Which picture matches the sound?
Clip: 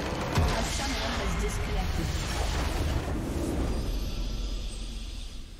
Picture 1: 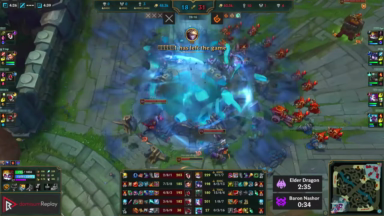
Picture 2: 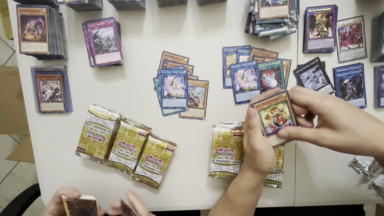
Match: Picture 1